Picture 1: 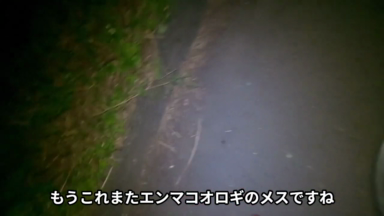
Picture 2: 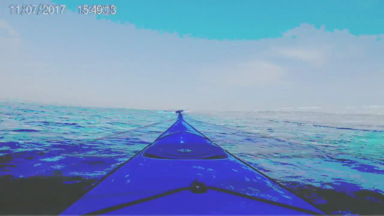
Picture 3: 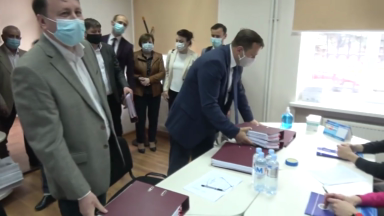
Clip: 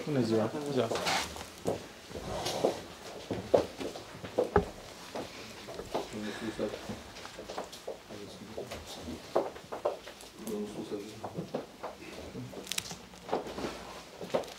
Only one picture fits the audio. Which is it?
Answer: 3